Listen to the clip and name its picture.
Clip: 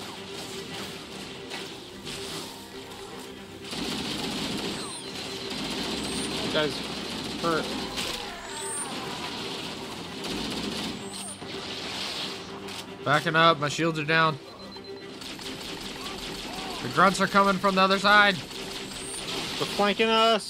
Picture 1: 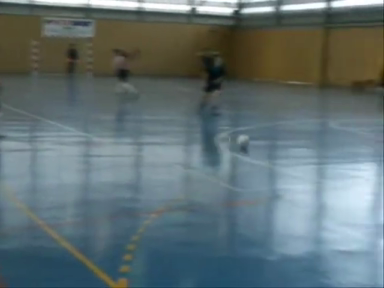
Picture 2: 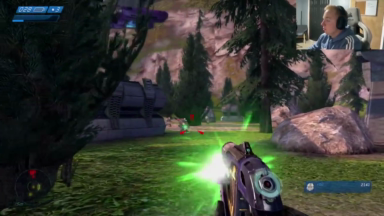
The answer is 2